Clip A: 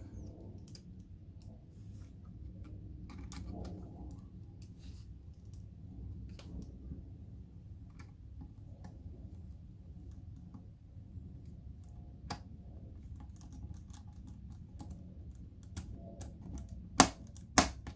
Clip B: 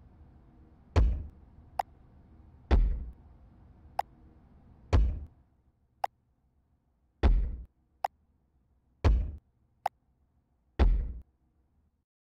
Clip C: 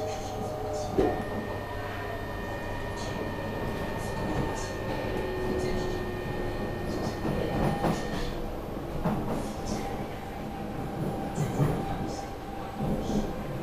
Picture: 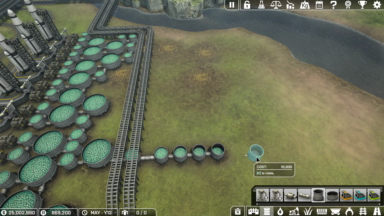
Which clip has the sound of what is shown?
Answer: B